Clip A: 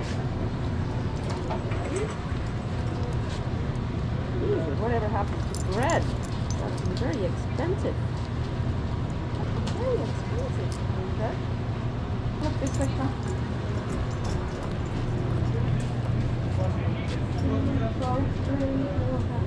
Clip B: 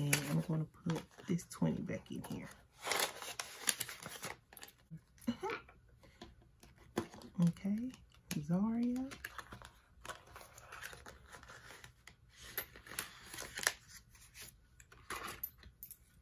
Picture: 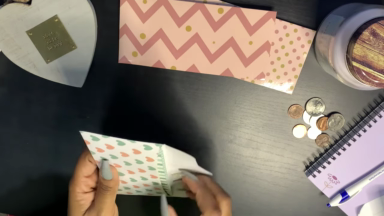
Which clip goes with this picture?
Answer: B